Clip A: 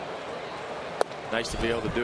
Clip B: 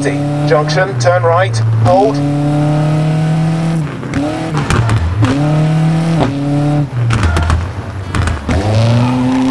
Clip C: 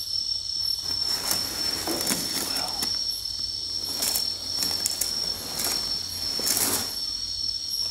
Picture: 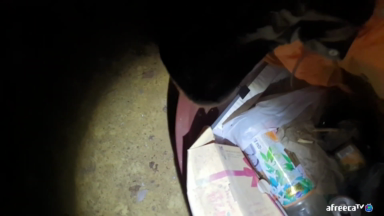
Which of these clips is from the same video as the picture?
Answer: C